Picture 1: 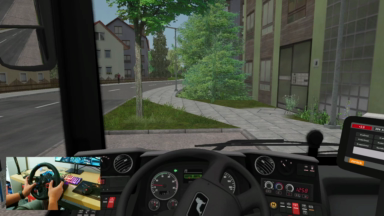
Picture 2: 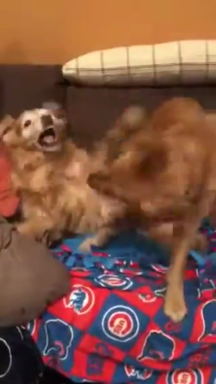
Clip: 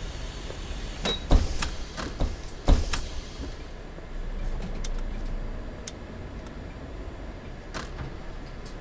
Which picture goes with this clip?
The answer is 1